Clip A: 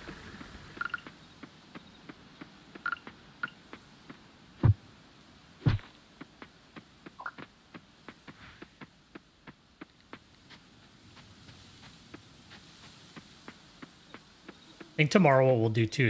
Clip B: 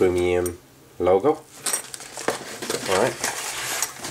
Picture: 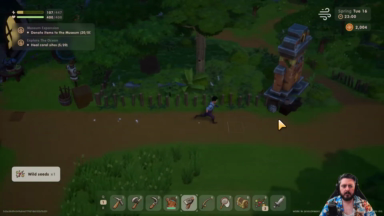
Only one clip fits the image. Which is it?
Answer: A